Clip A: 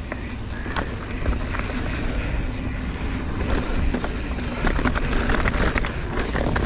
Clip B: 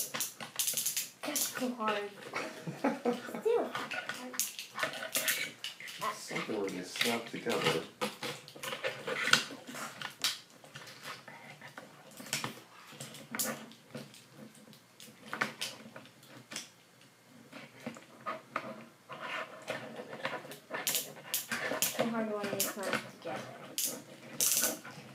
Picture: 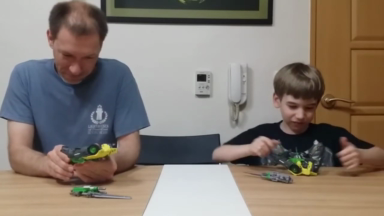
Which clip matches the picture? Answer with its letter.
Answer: B